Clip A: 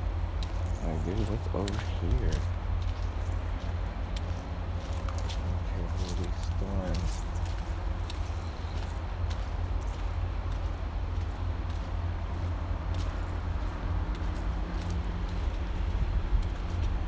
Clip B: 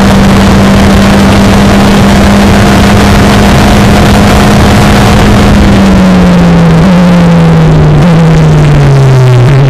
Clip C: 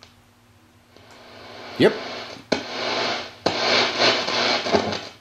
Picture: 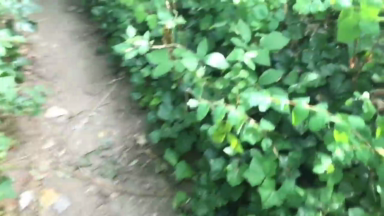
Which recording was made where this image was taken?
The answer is A